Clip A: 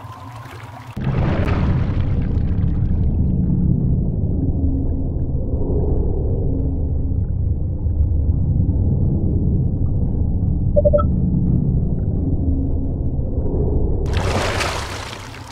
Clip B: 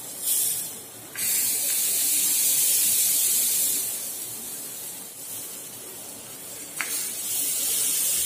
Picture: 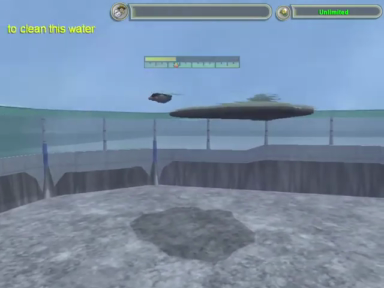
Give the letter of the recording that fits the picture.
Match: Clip A